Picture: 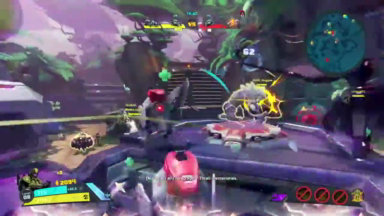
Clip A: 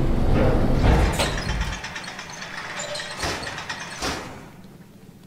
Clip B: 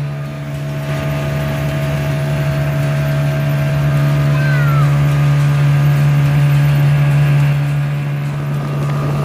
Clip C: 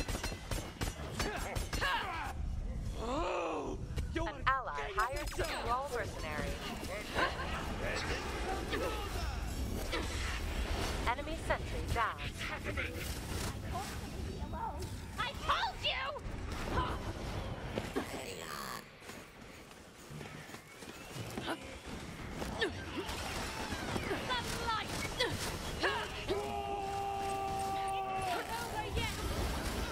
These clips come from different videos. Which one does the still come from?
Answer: C